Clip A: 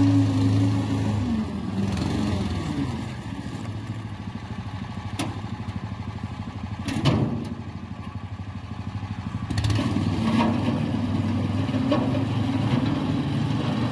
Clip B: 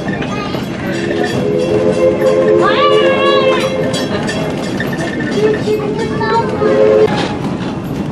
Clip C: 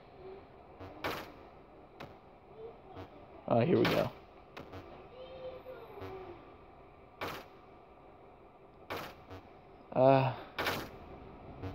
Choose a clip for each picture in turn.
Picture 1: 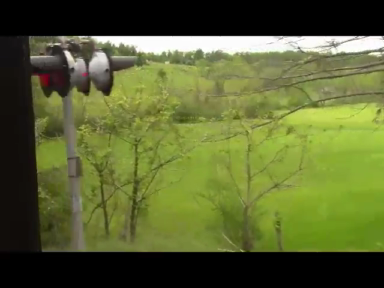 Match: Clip B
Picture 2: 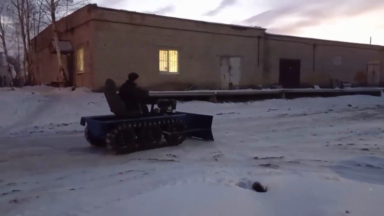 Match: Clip A